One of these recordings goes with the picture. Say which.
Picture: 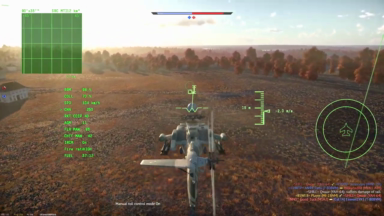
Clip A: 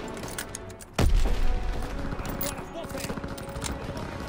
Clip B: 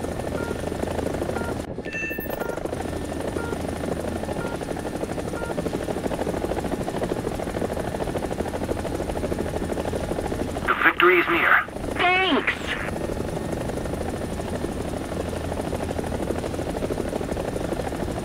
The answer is B